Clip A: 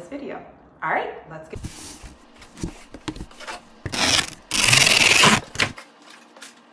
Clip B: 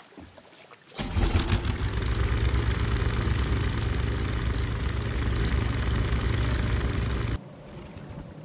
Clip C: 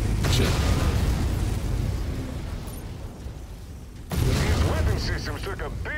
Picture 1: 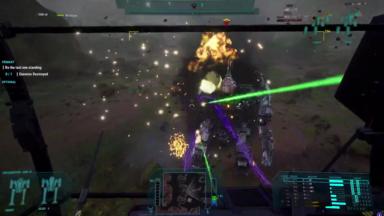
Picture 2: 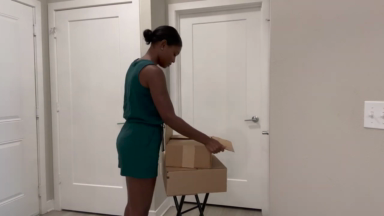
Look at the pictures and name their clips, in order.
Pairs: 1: C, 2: A